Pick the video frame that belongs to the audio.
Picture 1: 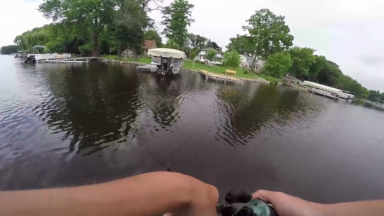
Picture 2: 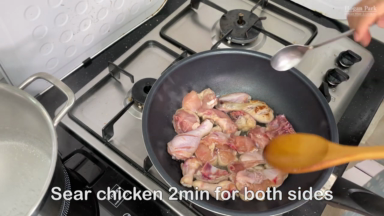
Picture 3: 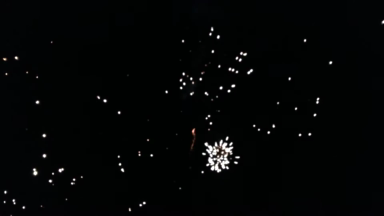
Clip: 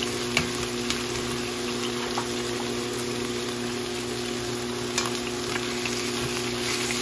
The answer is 2